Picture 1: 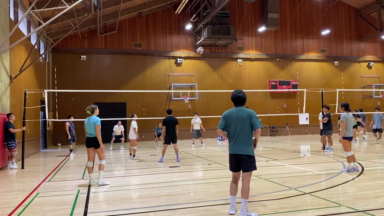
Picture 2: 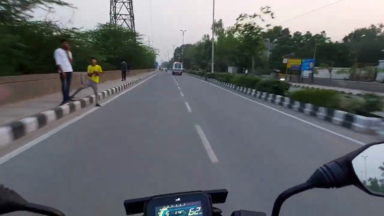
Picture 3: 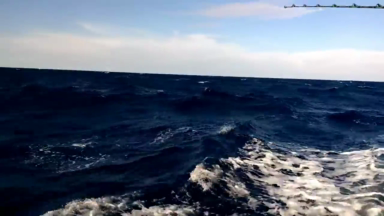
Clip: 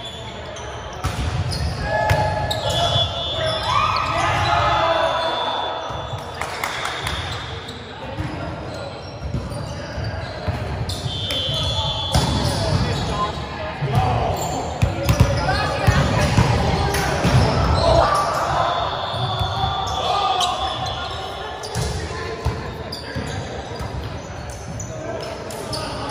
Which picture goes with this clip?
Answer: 1